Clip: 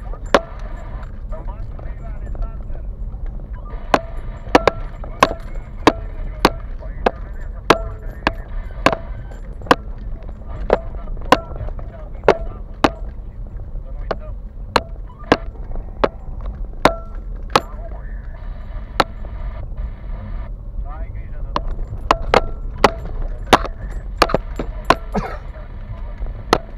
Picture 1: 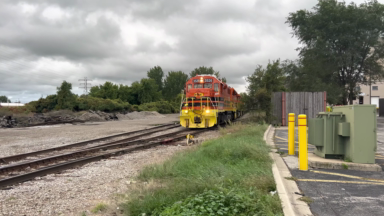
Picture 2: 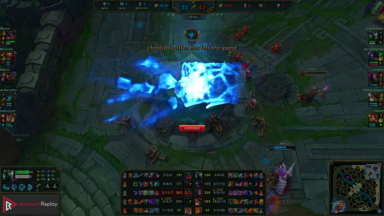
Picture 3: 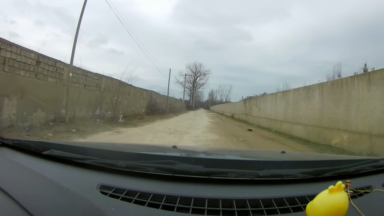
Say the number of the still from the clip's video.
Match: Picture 3